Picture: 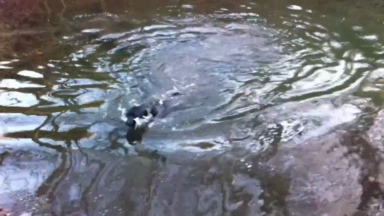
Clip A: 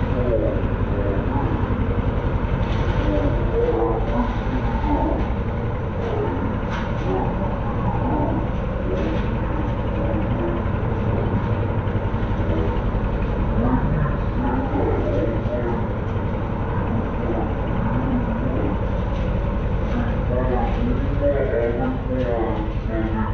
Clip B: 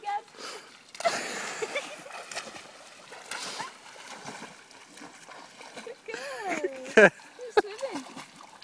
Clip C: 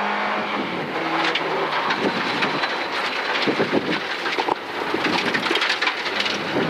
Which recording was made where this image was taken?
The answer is B